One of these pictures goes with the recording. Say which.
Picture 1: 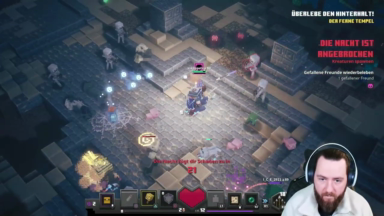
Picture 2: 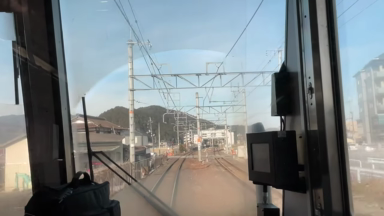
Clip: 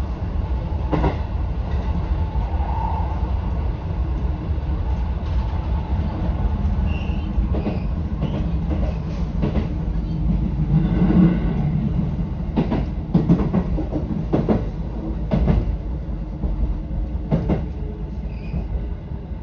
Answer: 2